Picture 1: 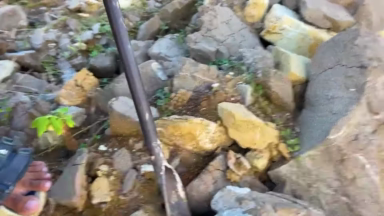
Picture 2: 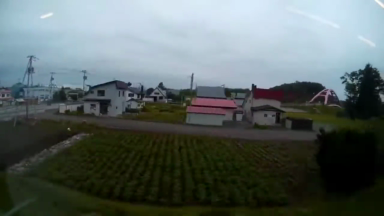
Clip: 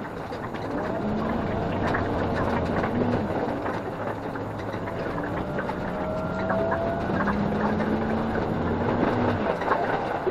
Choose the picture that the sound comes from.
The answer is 2